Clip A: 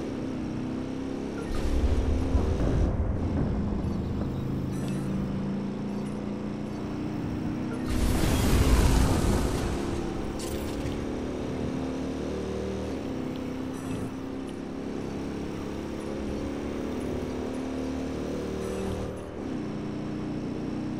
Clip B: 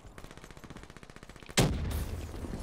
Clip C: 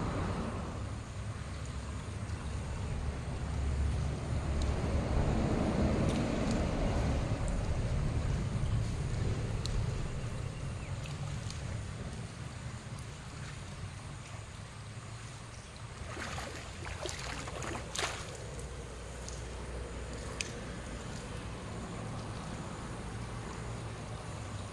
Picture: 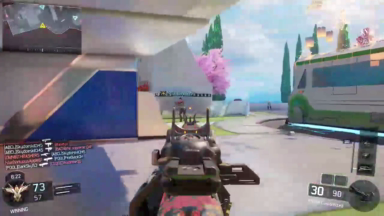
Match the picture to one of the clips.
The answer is B